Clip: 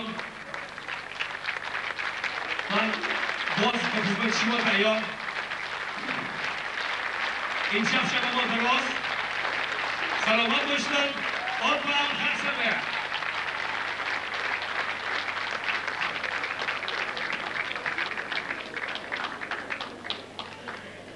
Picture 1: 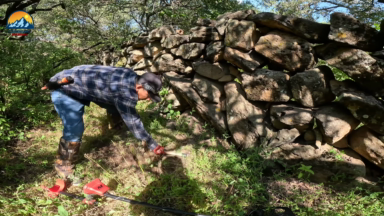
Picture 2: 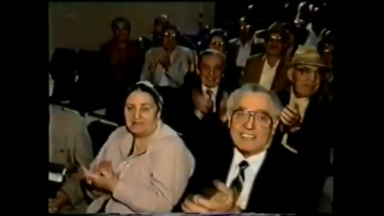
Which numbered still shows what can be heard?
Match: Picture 2